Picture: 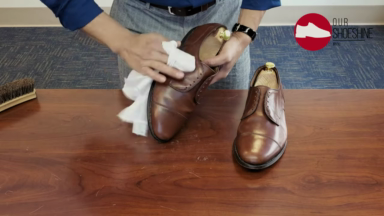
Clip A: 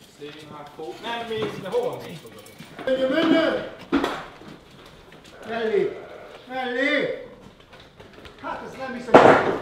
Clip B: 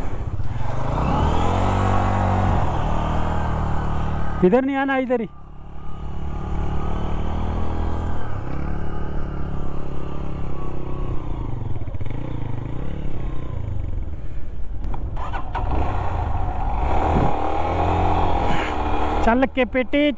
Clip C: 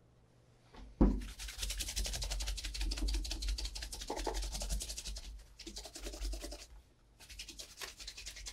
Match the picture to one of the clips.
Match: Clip C